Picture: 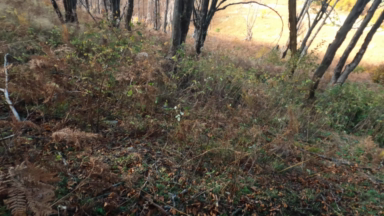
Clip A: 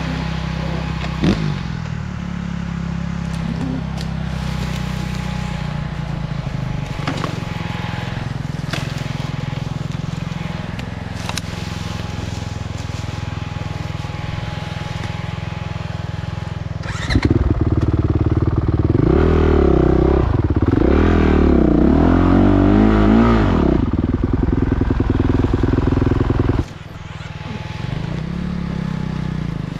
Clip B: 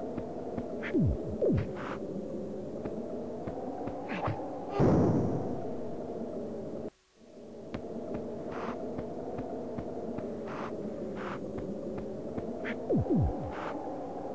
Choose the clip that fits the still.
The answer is A